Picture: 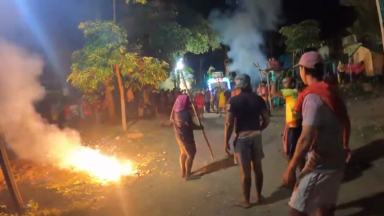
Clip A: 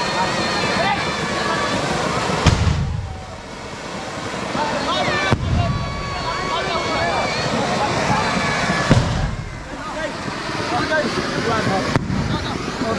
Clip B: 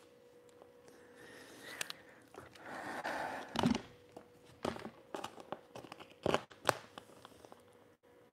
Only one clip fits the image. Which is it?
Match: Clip A